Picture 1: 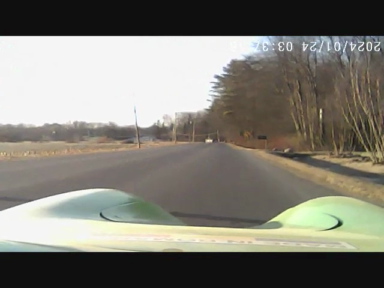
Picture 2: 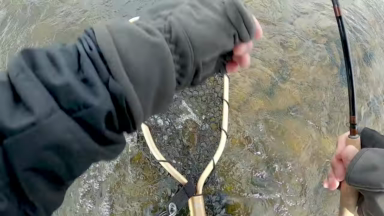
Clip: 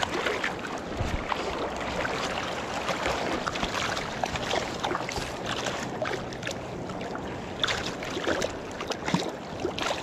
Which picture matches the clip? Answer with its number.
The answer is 2